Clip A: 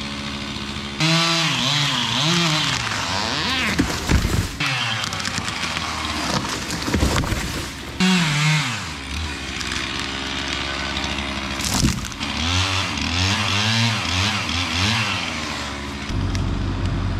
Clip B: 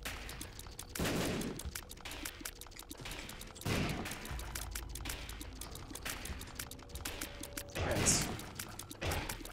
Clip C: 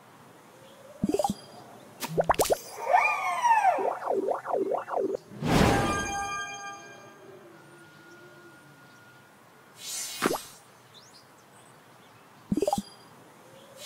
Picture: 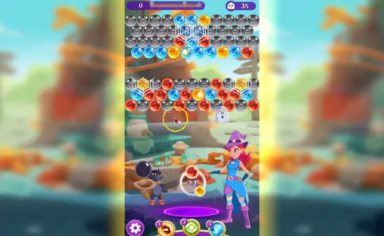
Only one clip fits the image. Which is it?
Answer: C